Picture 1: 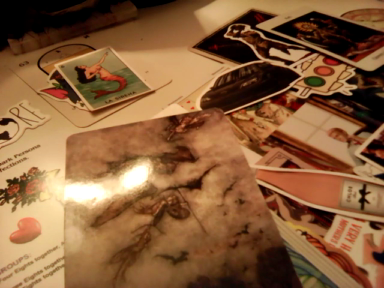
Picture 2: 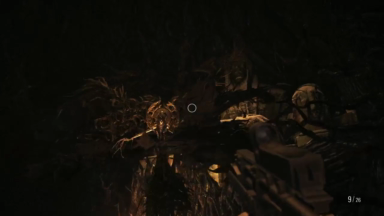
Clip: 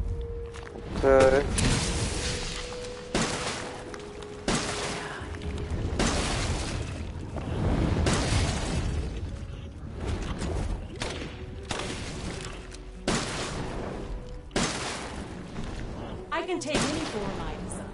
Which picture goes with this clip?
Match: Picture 2